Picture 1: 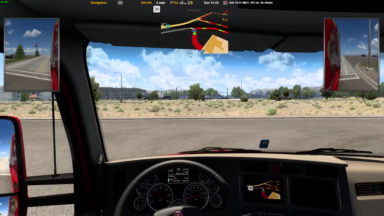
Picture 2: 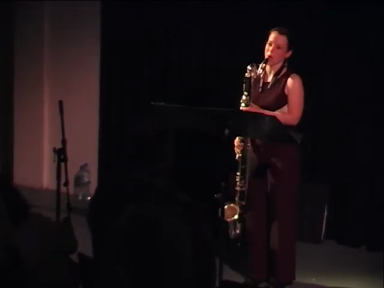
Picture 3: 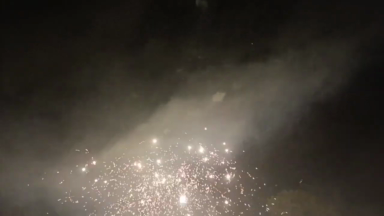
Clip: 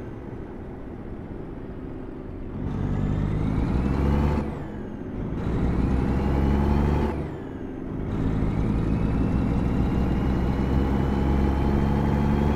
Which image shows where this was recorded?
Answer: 1